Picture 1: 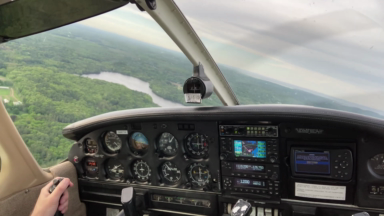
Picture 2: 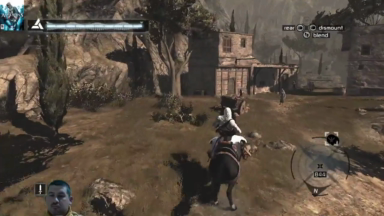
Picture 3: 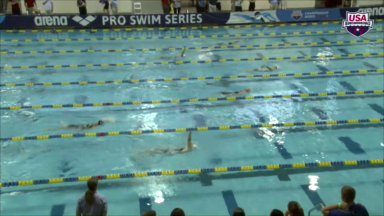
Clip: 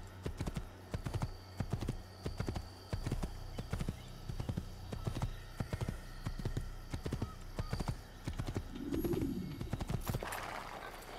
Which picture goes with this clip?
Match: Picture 2